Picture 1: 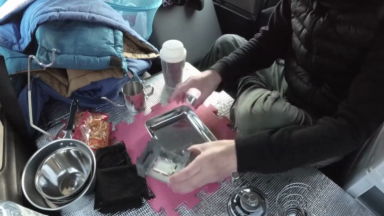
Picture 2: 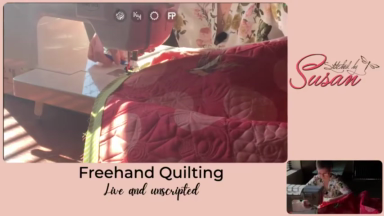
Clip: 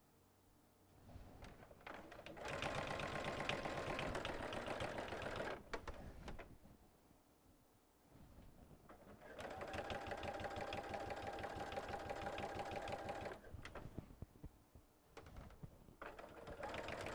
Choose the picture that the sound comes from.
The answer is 2